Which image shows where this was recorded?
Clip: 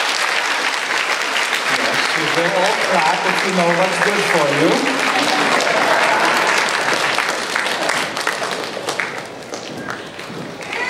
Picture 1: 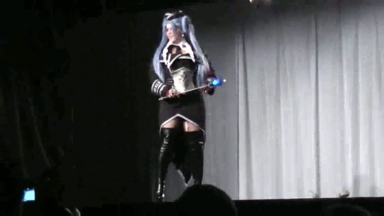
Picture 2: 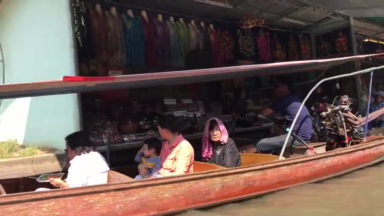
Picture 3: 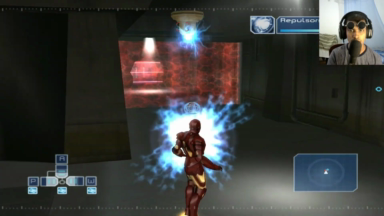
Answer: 1